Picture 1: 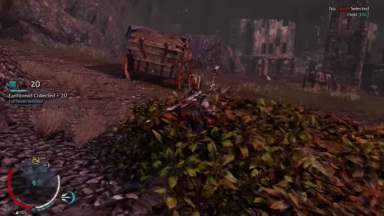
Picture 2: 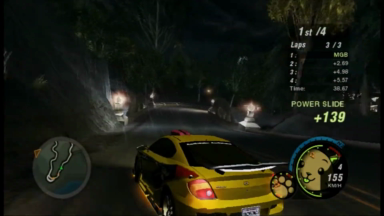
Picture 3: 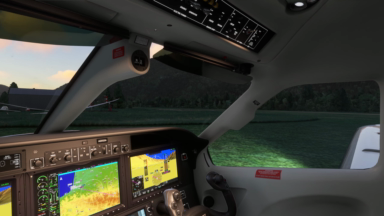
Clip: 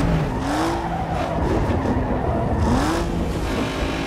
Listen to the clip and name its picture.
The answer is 2